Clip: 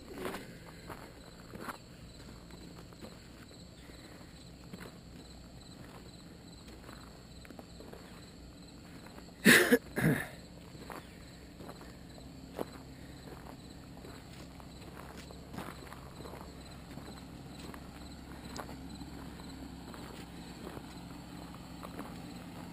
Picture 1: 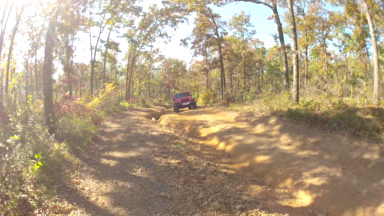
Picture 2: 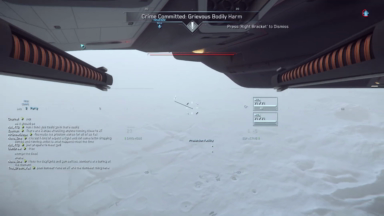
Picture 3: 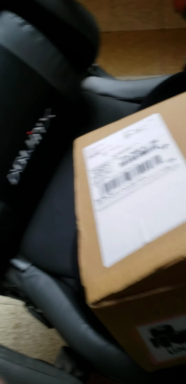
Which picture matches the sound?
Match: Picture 1